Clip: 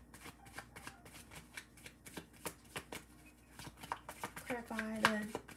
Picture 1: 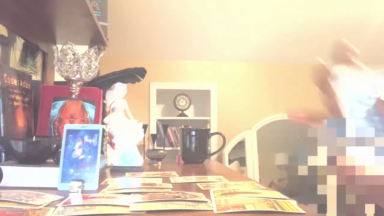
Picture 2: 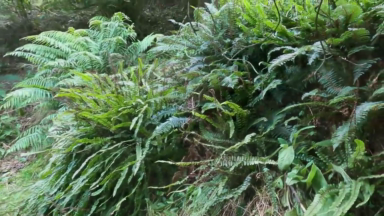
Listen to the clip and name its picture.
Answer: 1